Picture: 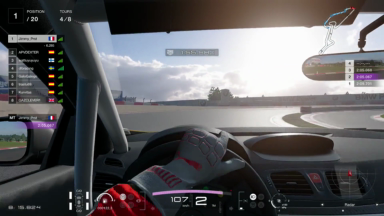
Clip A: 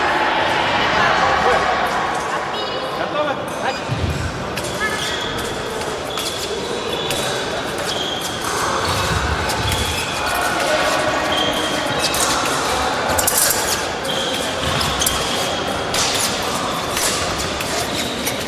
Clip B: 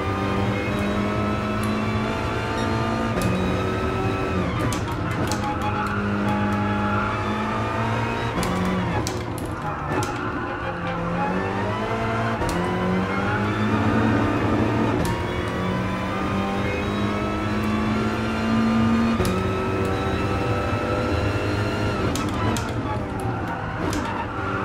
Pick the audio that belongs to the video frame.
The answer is B